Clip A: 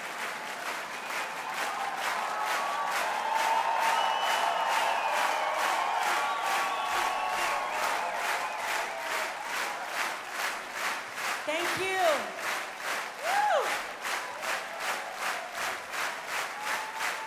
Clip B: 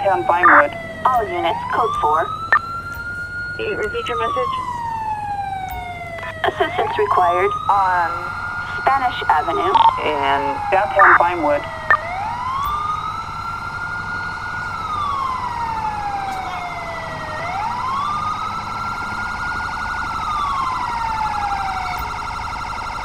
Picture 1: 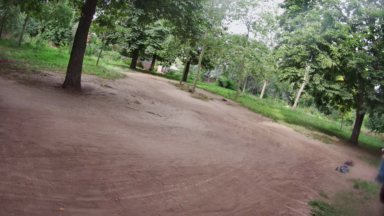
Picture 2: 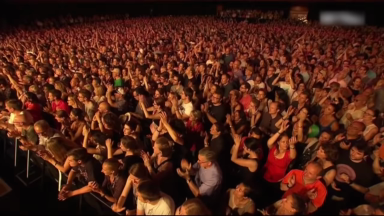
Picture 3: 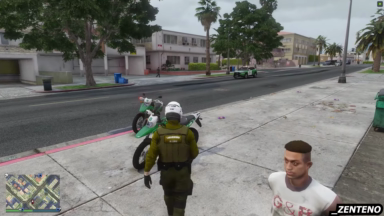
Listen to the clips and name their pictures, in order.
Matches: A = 2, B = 3